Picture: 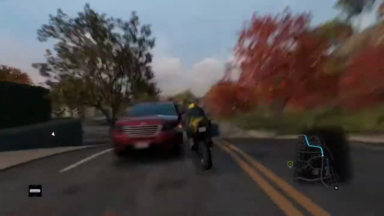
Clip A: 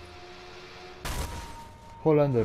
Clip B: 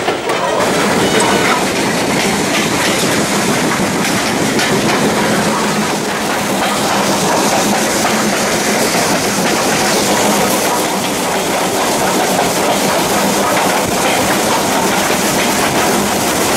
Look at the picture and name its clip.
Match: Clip A